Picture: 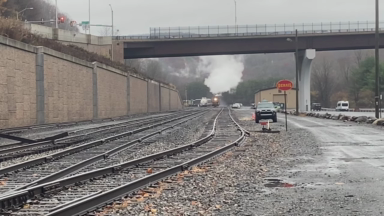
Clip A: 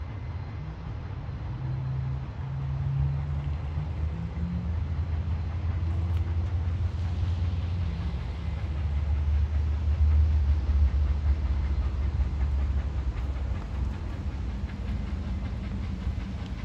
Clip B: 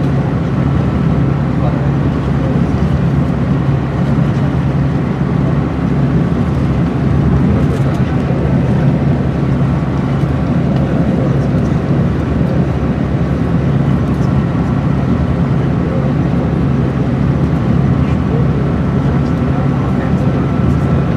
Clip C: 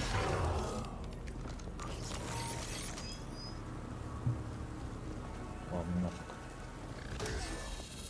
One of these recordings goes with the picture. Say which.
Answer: A